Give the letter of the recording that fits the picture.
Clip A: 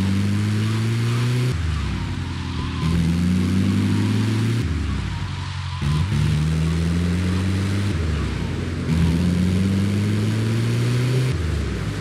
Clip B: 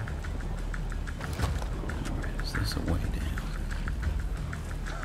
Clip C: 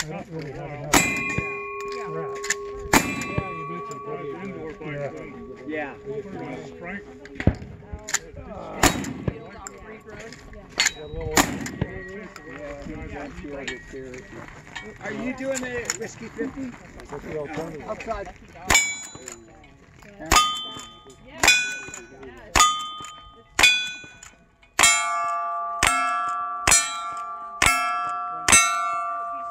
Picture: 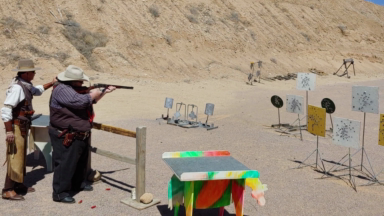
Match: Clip C